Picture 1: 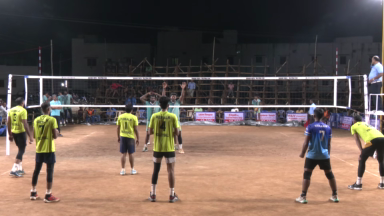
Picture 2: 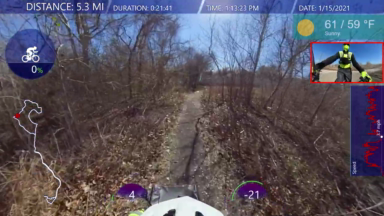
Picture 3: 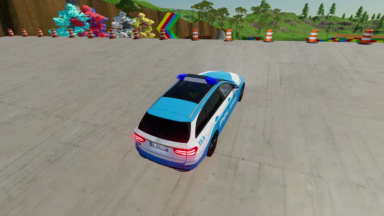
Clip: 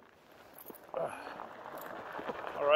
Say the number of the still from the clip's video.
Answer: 2